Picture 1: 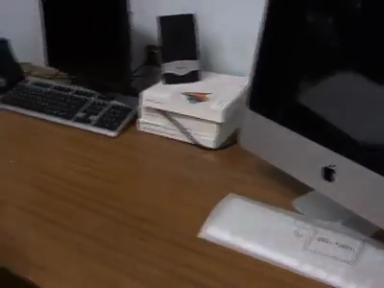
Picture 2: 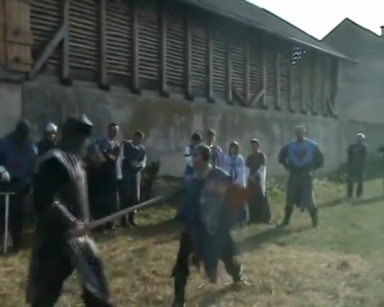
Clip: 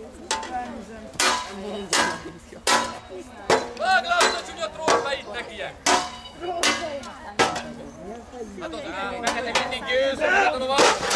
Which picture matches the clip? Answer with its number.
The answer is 2